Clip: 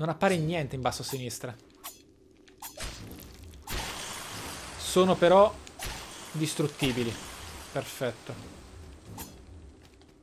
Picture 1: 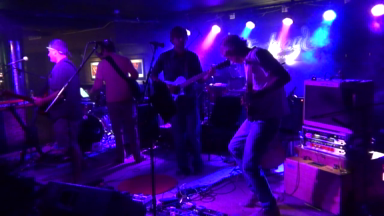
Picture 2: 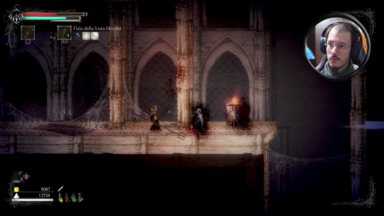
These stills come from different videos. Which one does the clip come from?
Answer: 2